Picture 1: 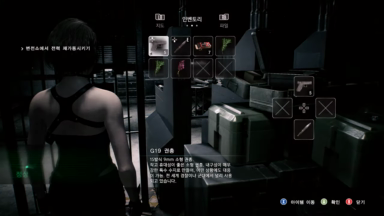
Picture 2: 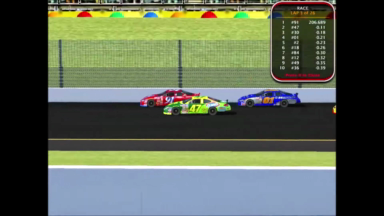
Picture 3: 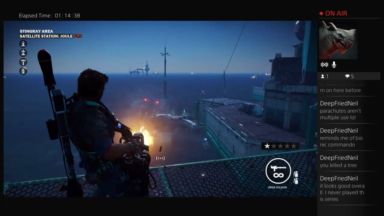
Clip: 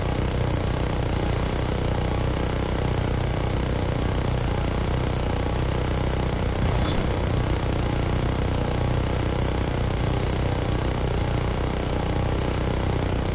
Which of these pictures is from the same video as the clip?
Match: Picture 3